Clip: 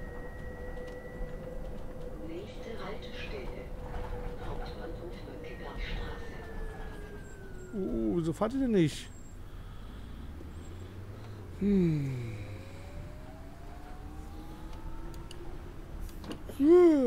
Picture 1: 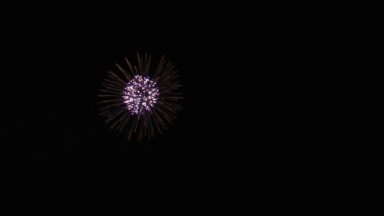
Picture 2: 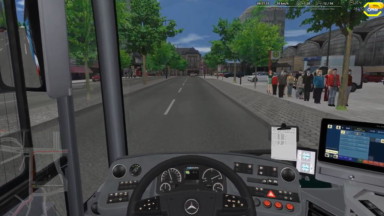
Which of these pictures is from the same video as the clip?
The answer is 2